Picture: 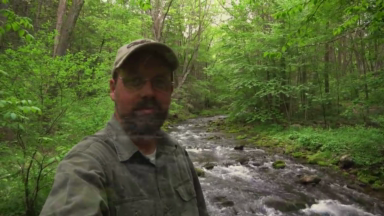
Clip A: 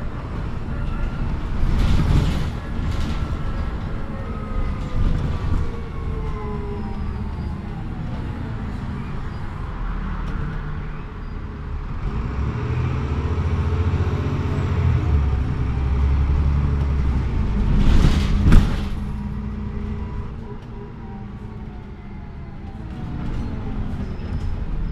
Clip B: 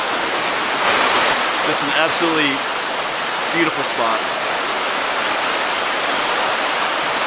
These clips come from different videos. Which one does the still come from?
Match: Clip B